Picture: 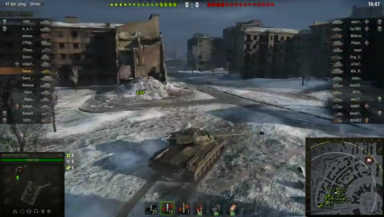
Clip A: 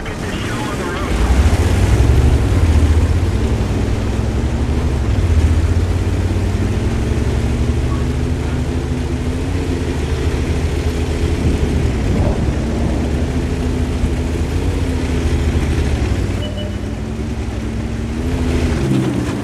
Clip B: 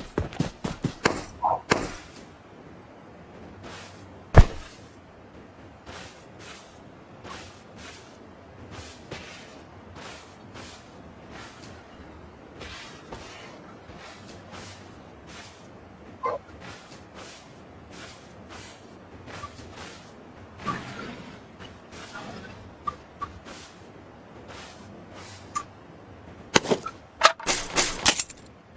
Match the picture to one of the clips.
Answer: A